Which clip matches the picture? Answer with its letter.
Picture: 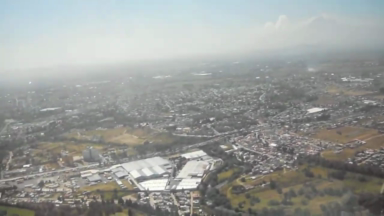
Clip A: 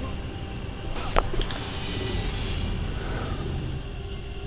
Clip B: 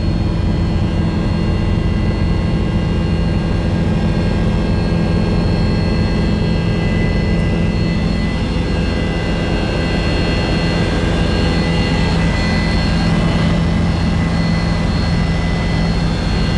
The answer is B